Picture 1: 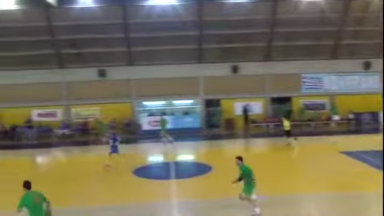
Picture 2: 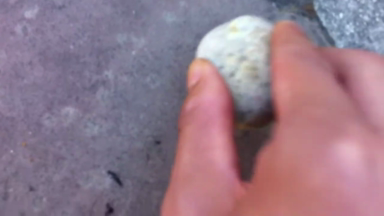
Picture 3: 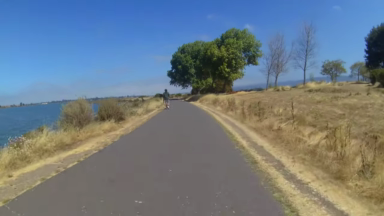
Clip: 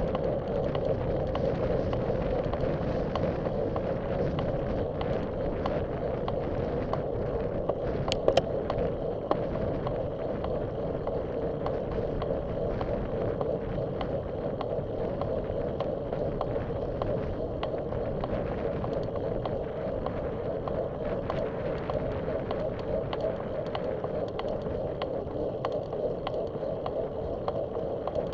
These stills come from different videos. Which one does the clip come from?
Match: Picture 3